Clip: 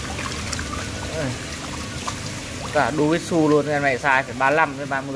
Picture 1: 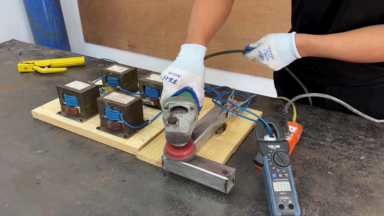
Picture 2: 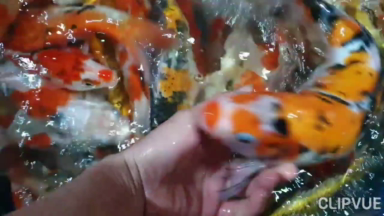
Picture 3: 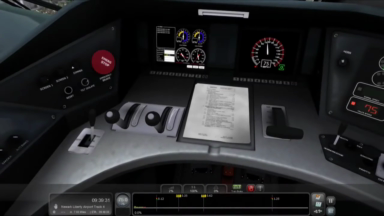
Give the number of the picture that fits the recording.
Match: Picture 2